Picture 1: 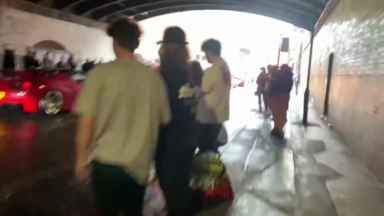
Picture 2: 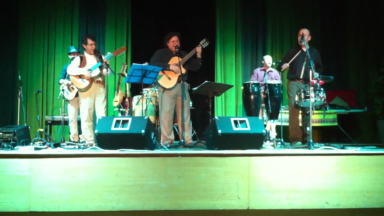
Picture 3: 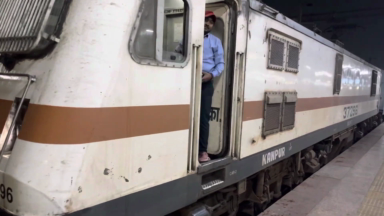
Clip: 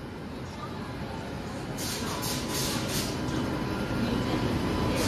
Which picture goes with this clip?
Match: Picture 3